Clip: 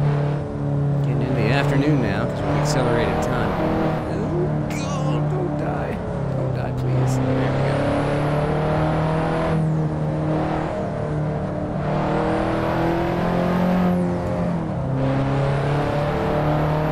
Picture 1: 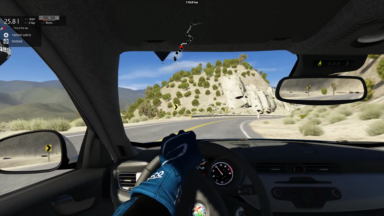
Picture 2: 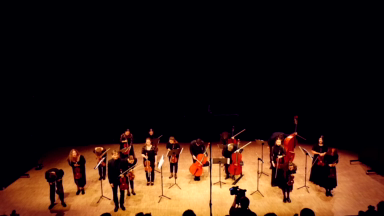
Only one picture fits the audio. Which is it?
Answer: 1